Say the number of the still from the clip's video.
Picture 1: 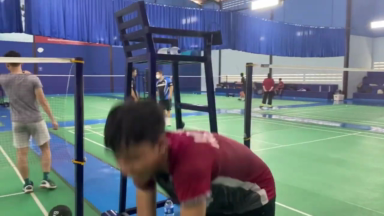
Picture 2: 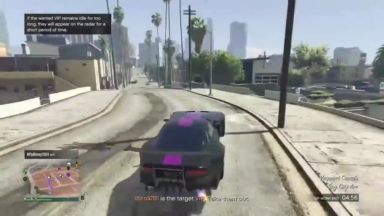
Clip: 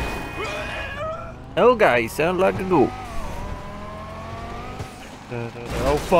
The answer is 2